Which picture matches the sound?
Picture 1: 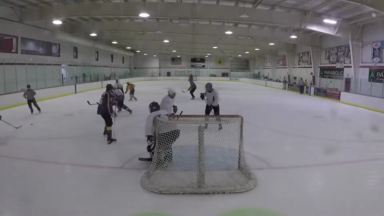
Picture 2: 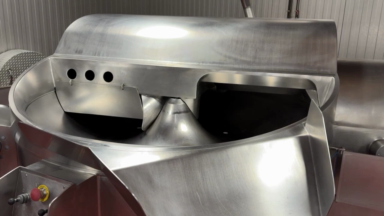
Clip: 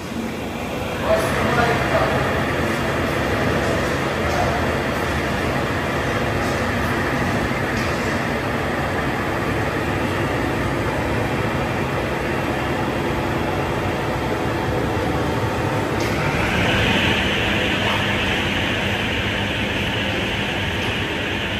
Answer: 2